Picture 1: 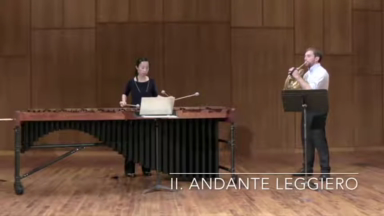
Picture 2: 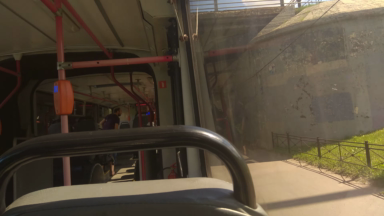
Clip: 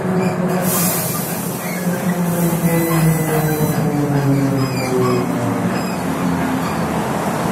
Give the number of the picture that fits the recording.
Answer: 2